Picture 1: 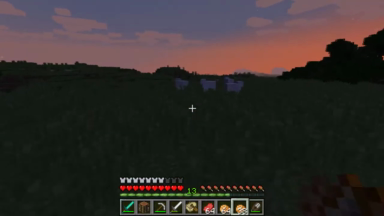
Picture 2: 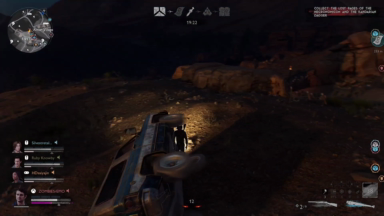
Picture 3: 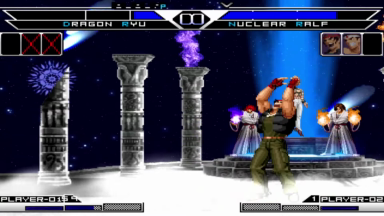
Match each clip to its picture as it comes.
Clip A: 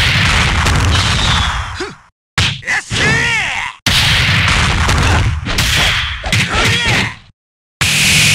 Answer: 3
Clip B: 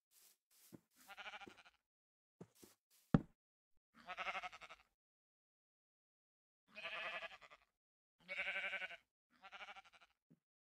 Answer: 1